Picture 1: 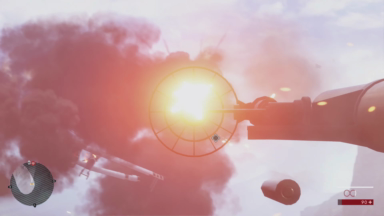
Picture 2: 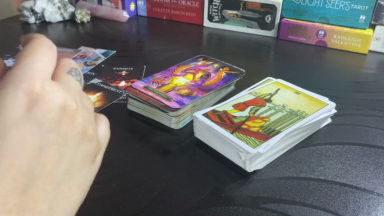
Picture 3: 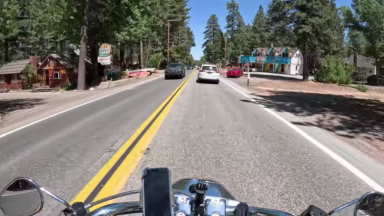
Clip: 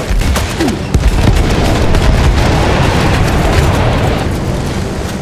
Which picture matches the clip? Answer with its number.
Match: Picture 1